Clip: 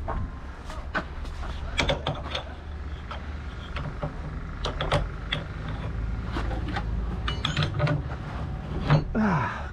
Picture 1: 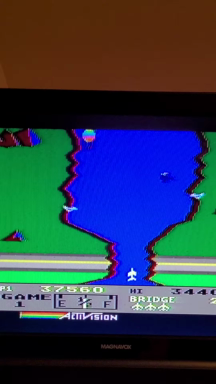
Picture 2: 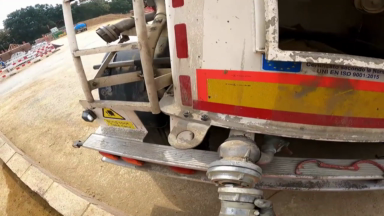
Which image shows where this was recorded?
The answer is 2